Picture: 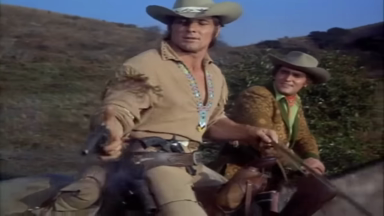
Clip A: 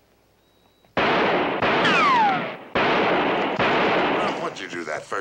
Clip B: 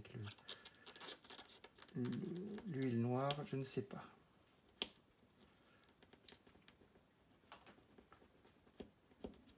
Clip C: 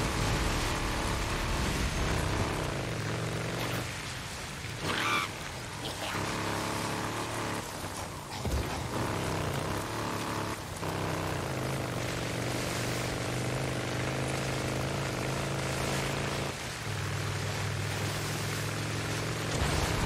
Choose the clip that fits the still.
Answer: A